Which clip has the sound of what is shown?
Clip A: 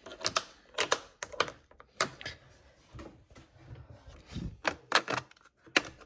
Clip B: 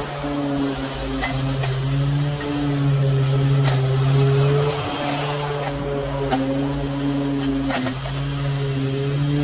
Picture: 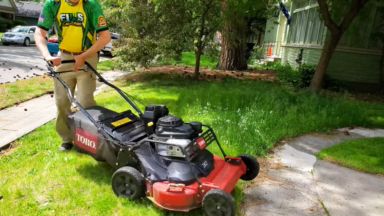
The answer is B